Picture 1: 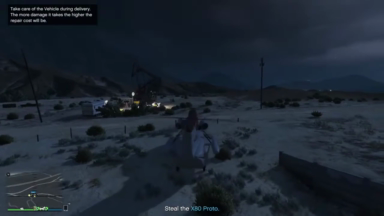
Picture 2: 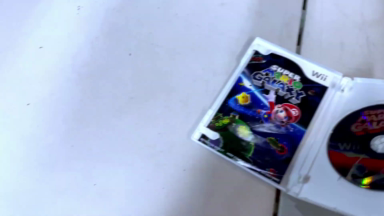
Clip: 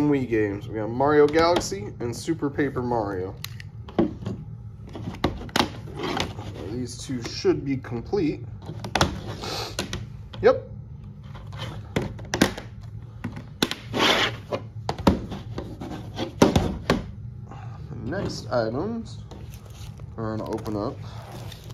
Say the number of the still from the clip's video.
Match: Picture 2